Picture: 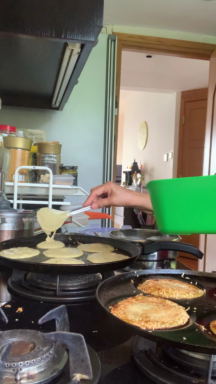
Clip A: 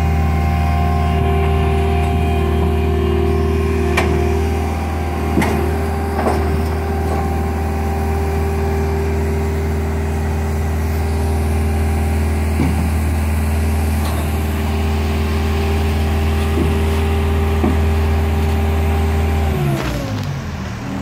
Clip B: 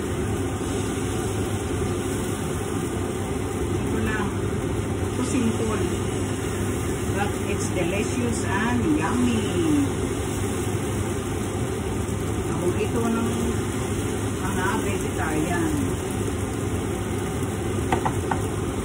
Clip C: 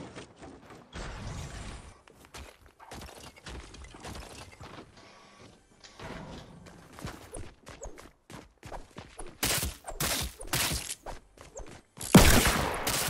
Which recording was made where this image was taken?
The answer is B